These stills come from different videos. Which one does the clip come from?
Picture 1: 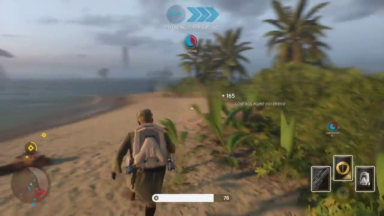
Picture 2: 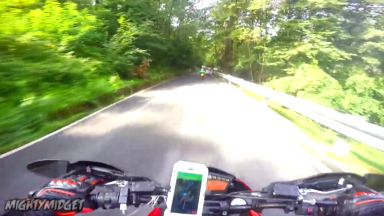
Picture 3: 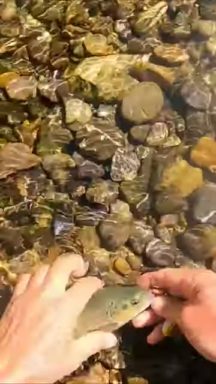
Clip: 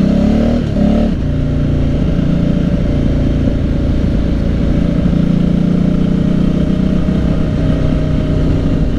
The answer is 2